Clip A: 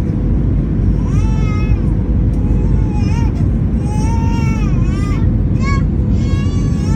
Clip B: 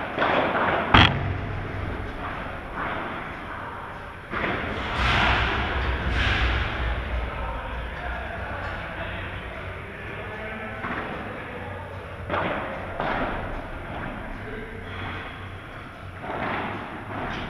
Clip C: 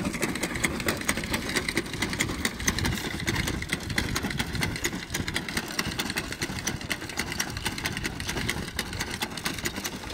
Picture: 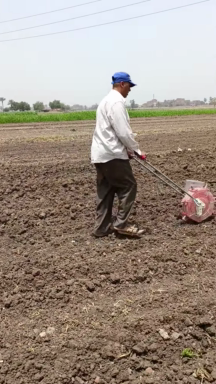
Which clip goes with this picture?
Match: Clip C